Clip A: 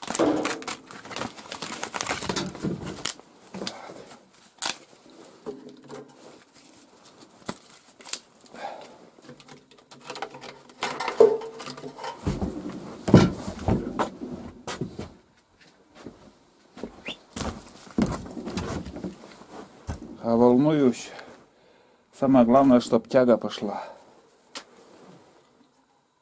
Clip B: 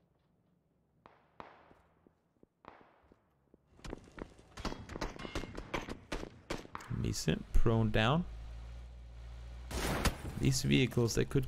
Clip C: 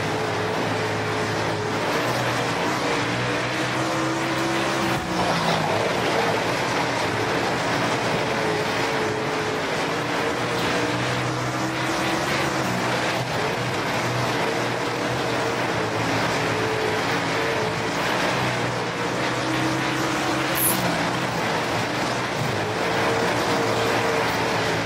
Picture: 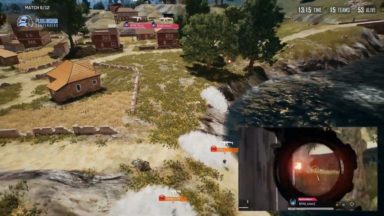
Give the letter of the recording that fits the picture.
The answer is B